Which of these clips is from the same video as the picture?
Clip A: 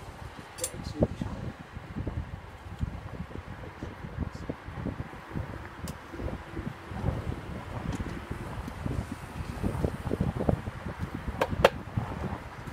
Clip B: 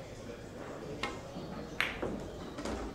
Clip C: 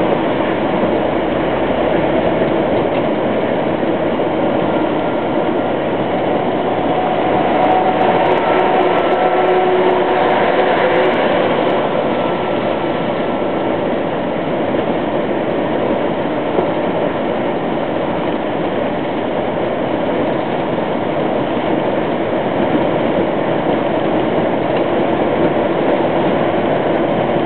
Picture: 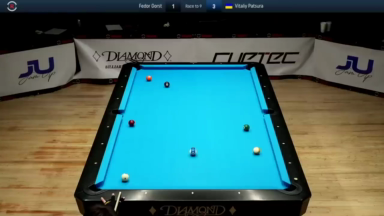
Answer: B